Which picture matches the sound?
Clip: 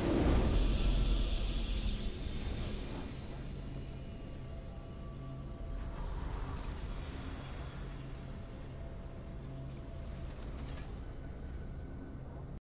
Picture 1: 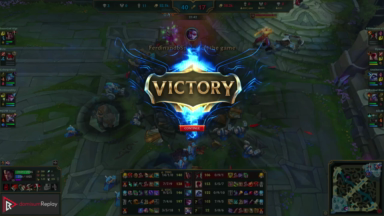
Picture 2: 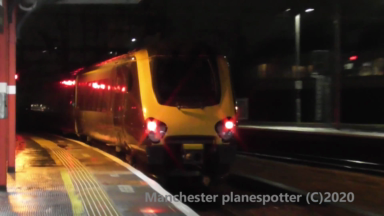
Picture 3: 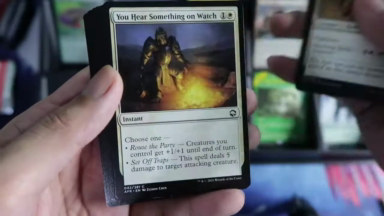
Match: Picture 1